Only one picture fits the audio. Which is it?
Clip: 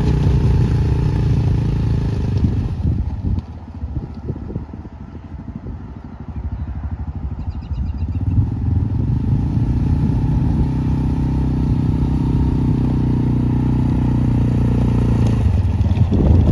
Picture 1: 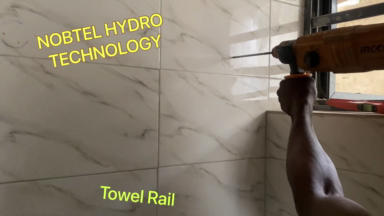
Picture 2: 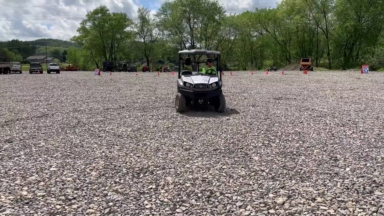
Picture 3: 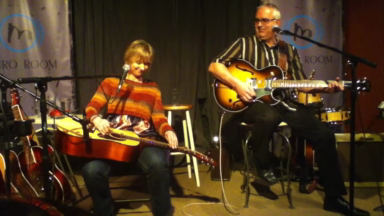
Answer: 2